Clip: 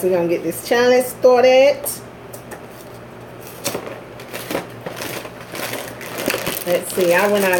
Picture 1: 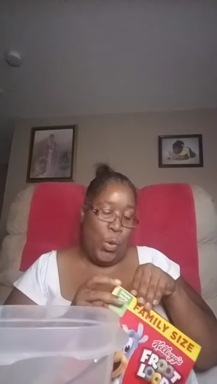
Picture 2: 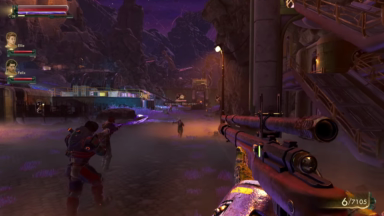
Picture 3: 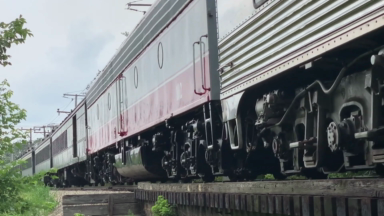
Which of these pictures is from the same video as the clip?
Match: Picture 1